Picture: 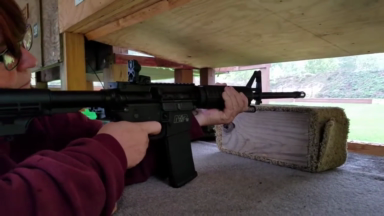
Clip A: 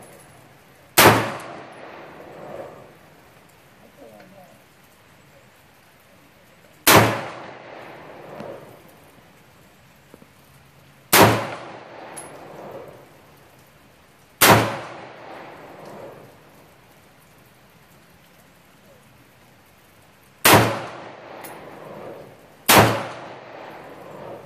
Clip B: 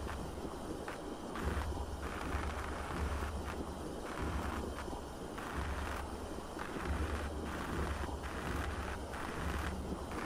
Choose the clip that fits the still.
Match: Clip A